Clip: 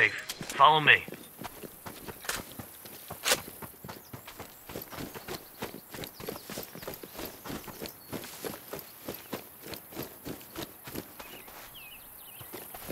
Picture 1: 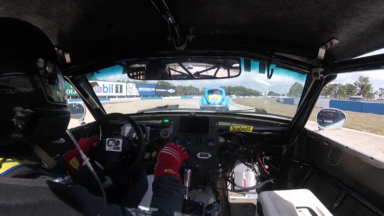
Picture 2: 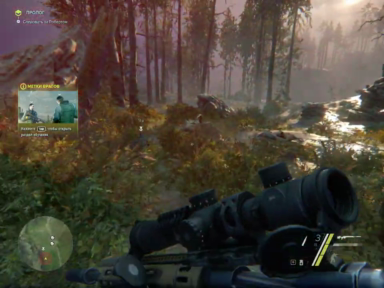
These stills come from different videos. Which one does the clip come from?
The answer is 2